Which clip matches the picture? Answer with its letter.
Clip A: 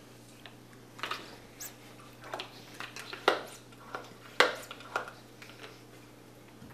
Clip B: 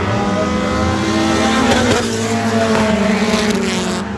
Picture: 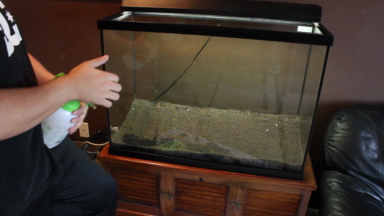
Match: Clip A